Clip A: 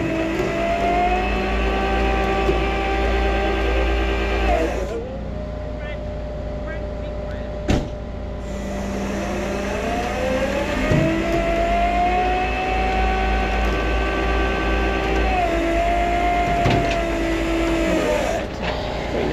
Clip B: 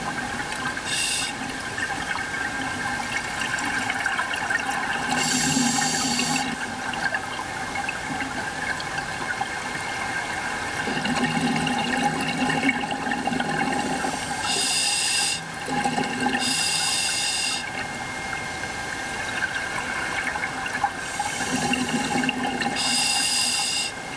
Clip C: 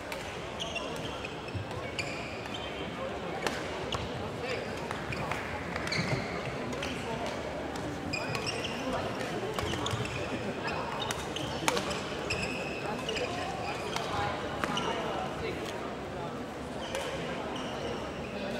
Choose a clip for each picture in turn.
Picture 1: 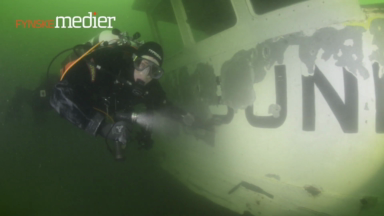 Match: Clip B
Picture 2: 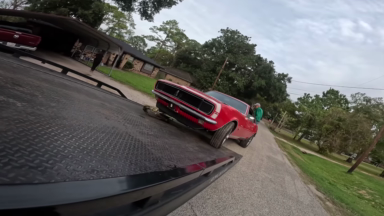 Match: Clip A